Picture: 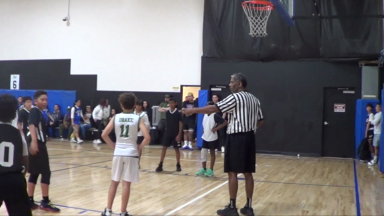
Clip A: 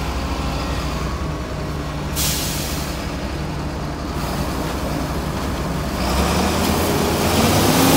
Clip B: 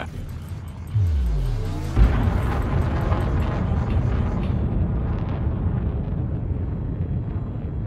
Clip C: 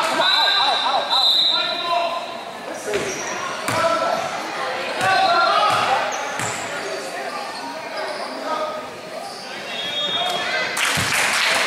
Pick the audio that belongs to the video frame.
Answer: C